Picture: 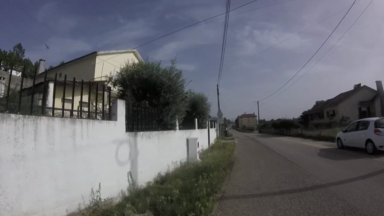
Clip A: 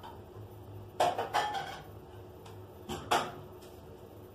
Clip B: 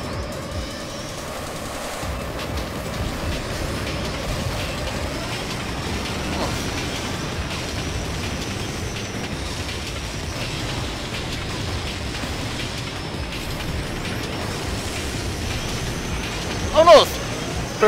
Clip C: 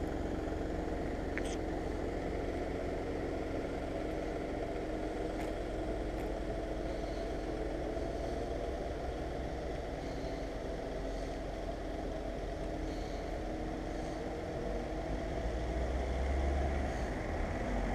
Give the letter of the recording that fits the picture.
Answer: C